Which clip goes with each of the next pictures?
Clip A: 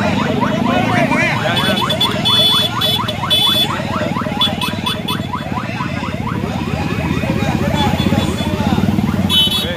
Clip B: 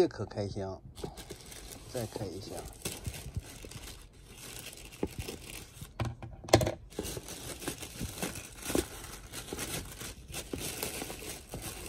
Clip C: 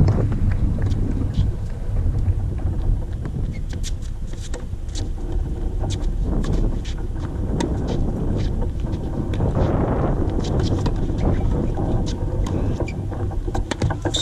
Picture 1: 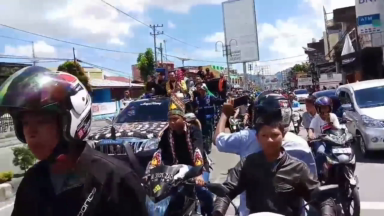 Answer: A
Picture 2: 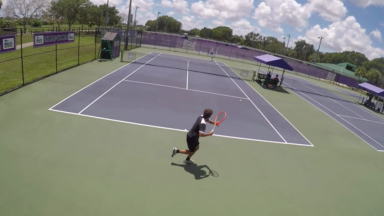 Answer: C